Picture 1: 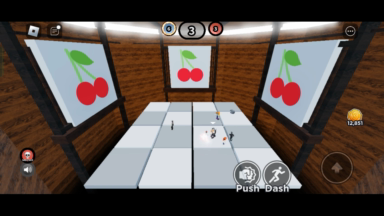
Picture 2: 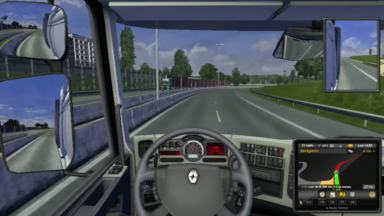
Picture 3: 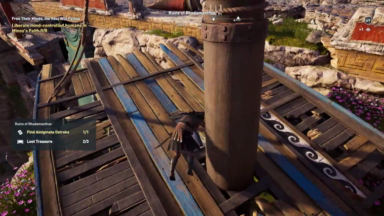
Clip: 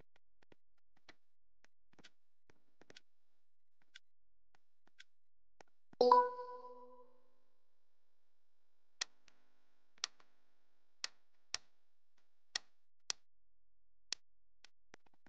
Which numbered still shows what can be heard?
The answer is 1